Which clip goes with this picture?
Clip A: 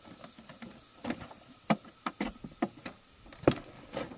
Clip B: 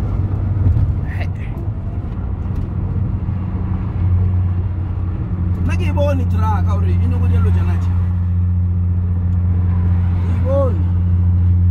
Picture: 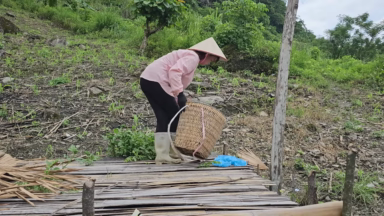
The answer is A